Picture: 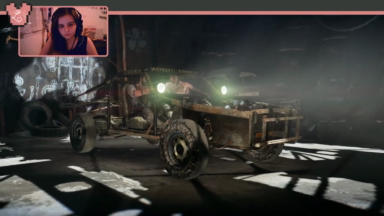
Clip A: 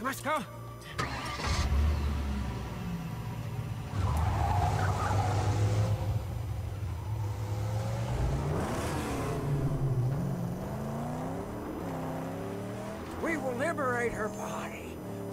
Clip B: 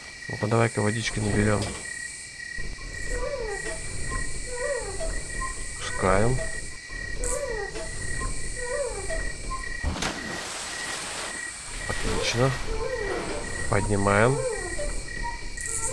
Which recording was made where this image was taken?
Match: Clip A